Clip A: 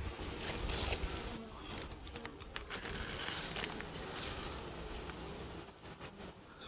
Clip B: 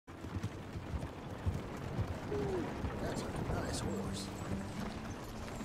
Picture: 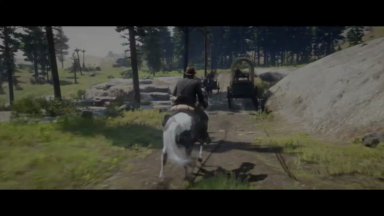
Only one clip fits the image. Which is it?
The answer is B